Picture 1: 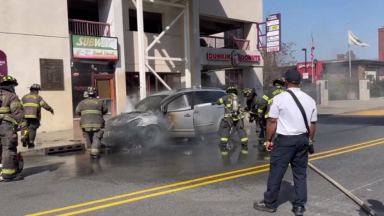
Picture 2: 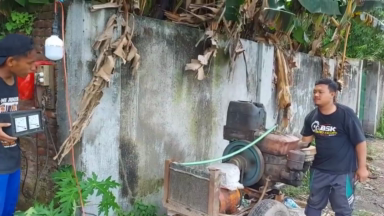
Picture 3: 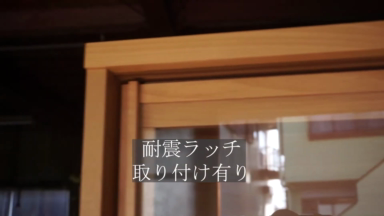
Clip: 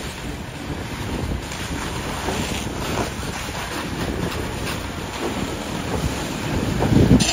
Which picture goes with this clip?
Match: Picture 1